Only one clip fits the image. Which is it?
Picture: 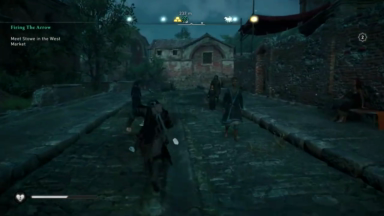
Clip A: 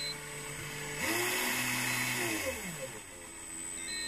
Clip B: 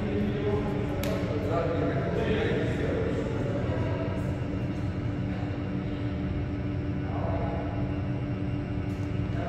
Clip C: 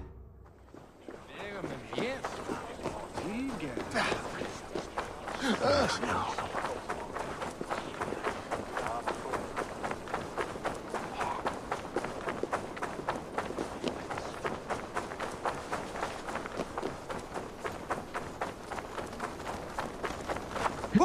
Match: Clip C